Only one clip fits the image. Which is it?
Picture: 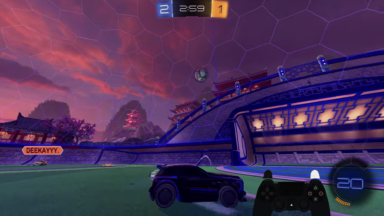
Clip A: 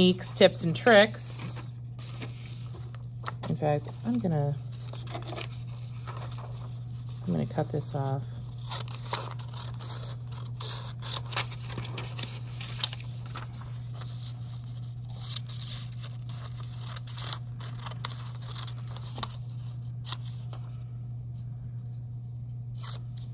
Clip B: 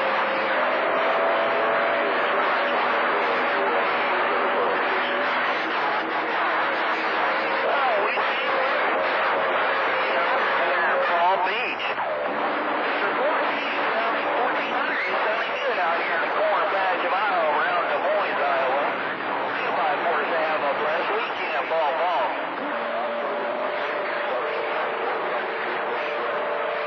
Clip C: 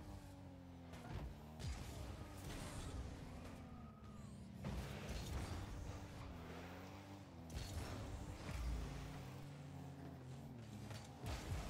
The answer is C